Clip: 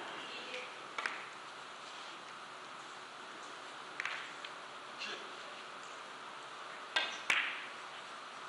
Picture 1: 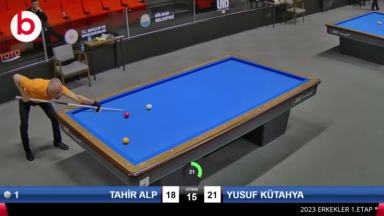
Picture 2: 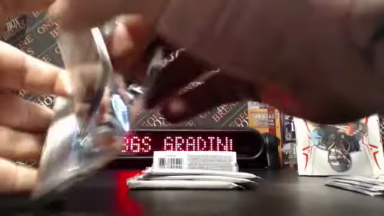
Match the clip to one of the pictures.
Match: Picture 1